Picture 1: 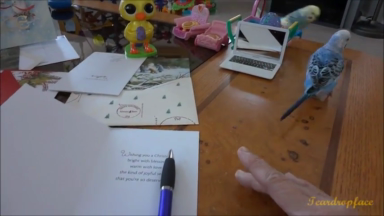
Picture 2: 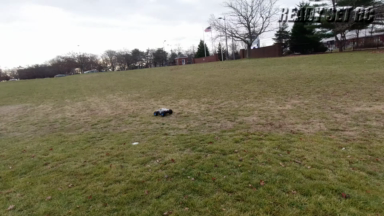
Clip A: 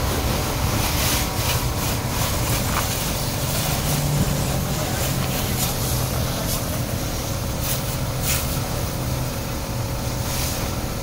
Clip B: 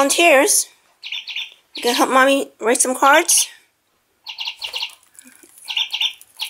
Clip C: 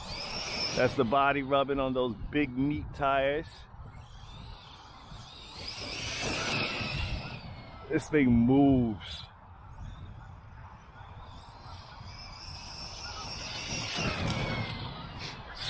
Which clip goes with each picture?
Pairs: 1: B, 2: C